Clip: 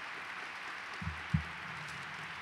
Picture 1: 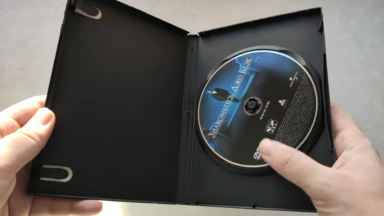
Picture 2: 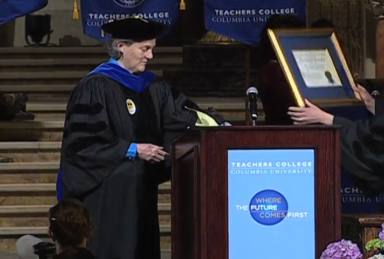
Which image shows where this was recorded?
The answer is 2